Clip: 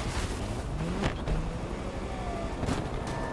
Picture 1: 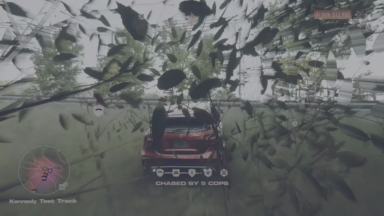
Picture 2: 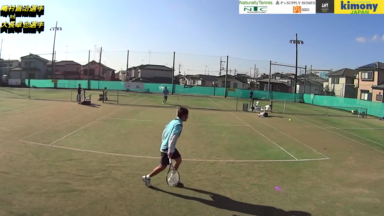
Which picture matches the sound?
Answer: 1